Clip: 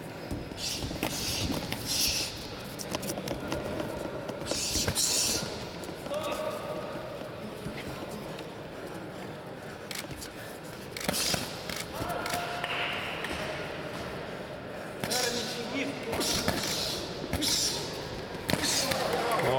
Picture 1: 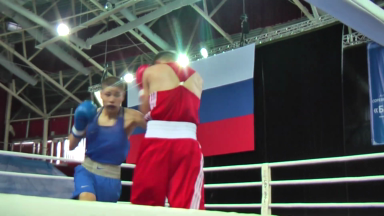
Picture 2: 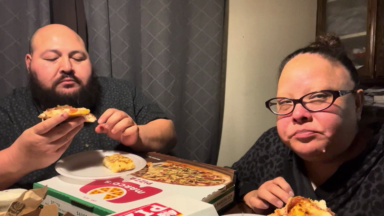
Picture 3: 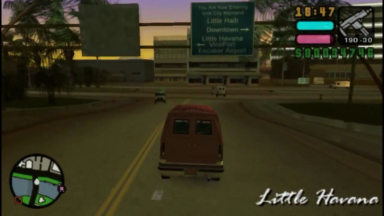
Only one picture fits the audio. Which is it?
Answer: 1